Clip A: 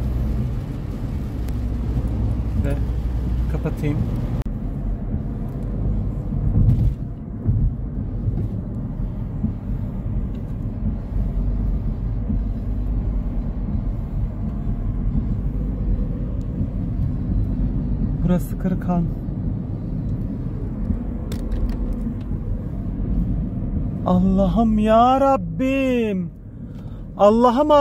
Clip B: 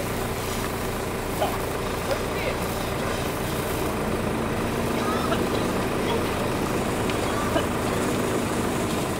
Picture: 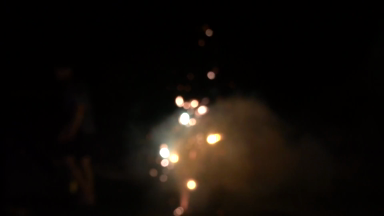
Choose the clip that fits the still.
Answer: B